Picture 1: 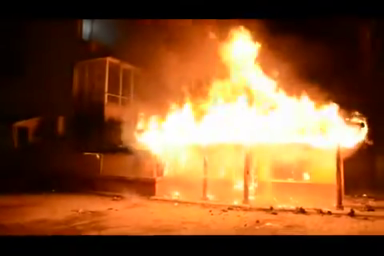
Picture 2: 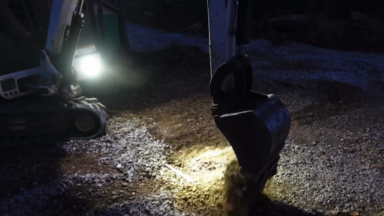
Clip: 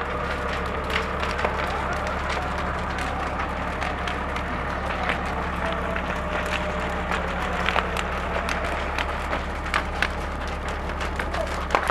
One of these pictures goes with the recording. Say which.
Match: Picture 1